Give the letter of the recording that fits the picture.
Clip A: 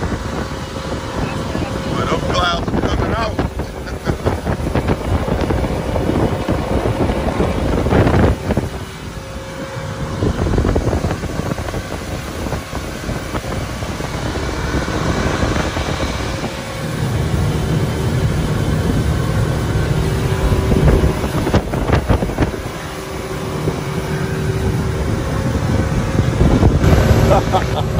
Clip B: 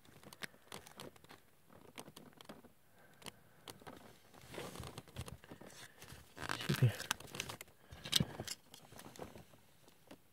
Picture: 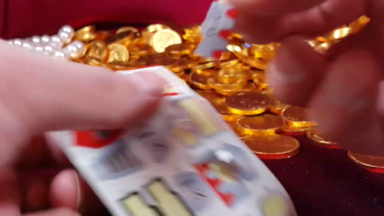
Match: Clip B